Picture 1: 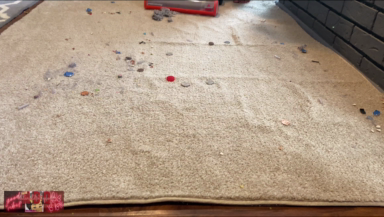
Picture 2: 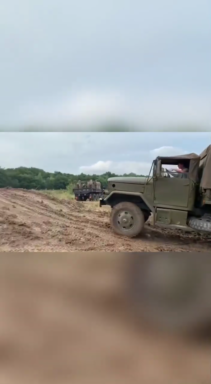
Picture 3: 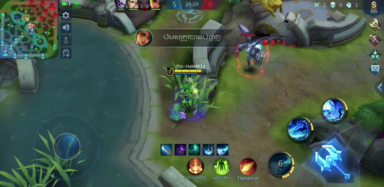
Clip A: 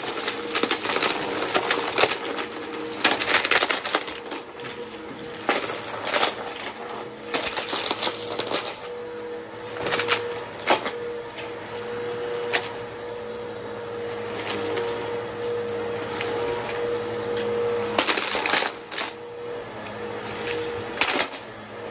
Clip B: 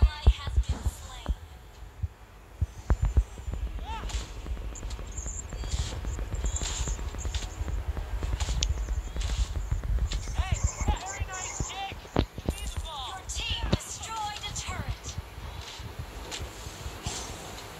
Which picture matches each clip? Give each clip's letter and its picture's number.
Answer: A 1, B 3